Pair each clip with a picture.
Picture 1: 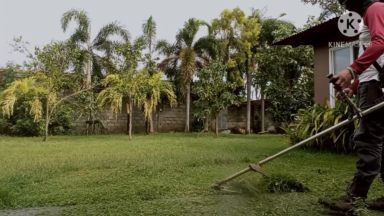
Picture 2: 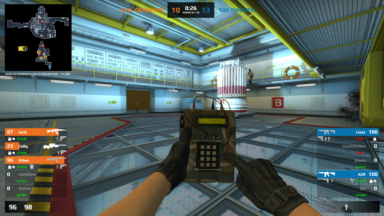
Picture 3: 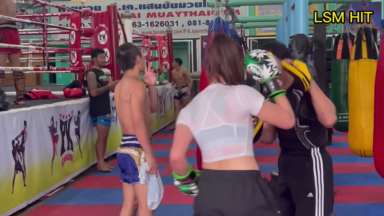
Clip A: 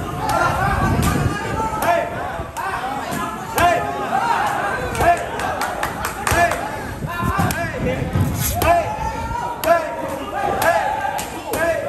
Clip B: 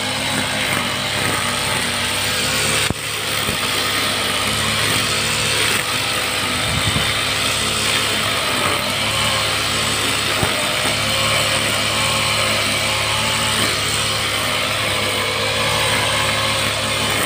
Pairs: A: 3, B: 1